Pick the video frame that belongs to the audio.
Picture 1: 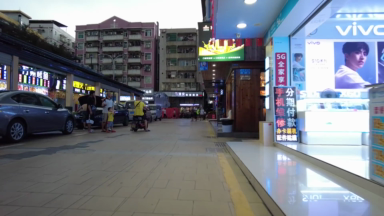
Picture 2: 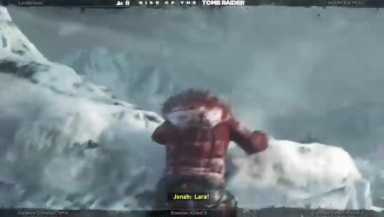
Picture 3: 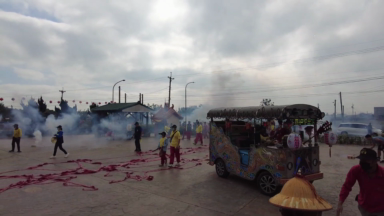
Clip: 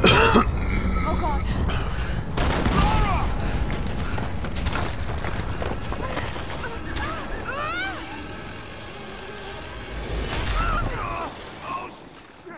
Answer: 2